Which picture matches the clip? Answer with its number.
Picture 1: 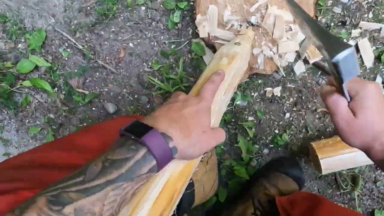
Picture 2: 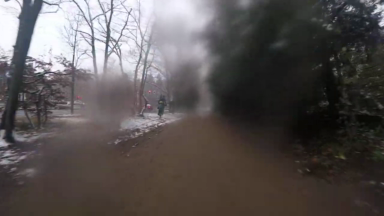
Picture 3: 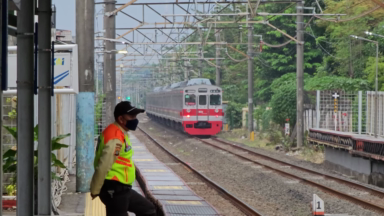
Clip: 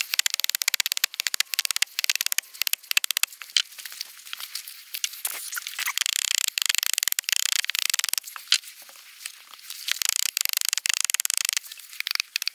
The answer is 1